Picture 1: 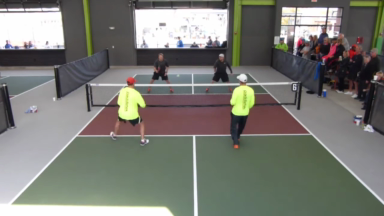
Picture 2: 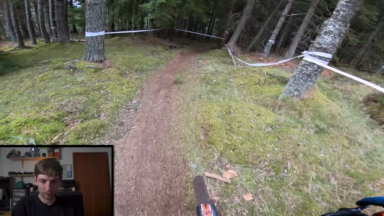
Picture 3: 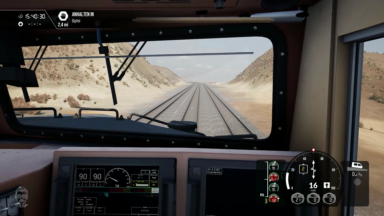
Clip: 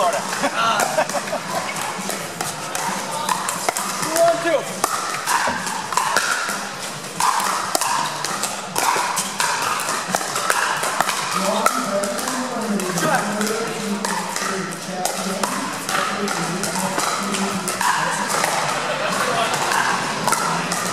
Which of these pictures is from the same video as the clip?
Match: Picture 1